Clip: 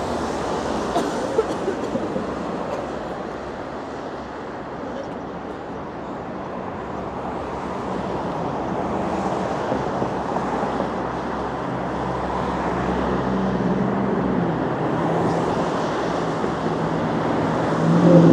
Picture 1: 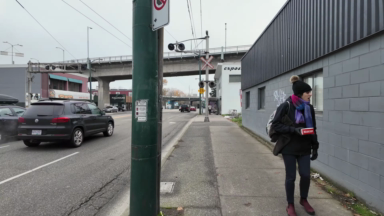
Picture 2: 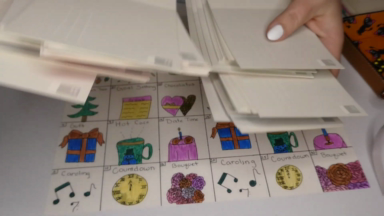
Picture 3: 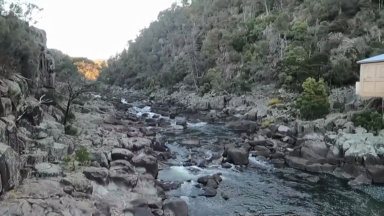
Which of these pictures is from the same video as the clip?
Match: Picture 1